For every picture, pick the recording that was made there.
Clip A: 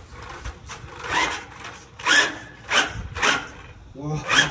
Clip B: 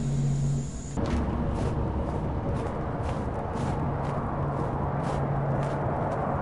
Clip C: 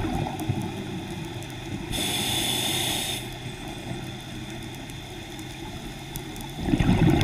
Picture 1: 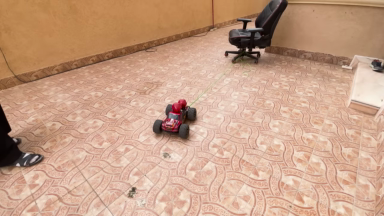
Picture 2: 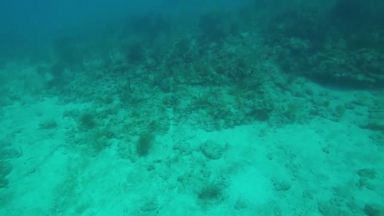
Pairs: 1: A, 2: C